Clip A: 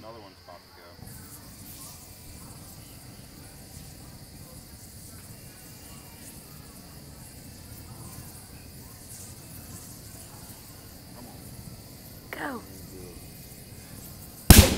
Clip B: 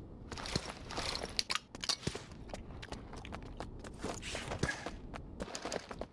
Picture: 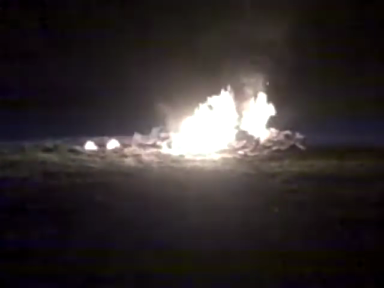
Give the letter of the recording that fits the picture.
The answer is A